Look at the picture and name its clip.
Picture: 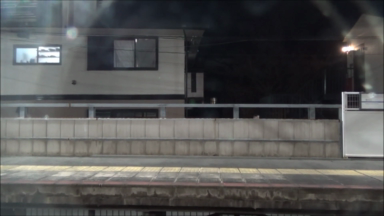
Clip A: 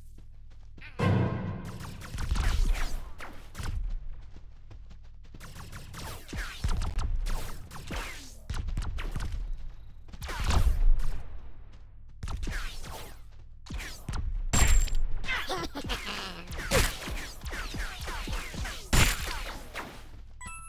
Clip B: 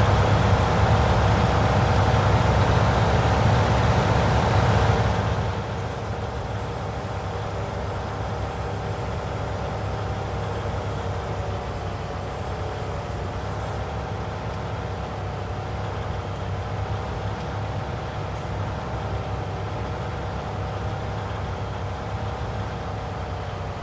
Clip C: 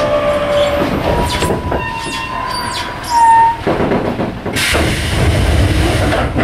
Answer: C